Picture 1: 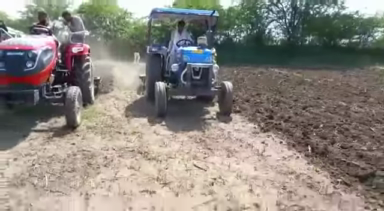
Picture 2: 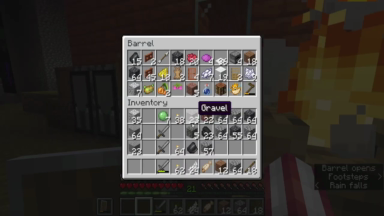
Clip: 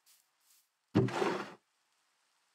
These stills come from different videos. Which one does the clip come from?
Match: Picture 2